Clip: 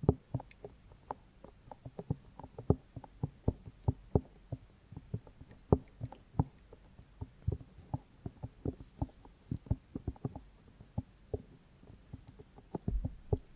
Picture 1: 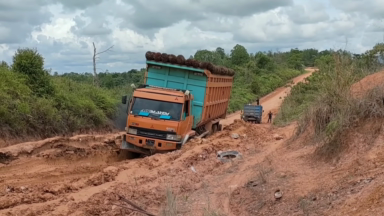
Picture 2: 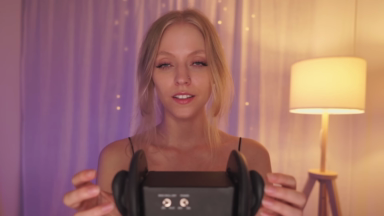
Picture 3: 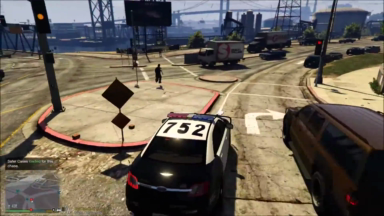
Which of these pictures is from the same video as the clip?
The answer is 2